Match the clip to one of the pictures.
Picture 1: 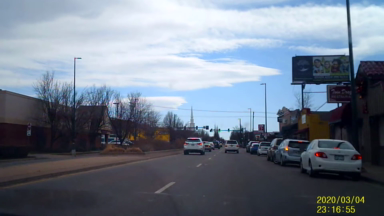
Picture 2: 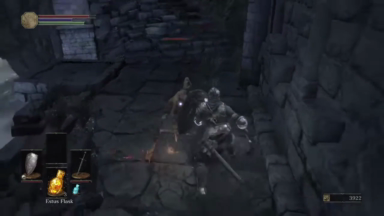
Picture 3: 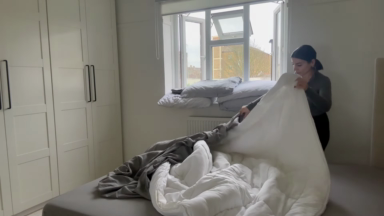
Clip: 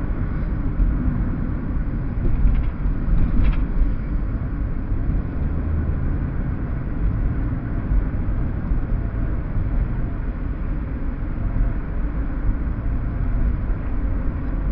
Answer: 1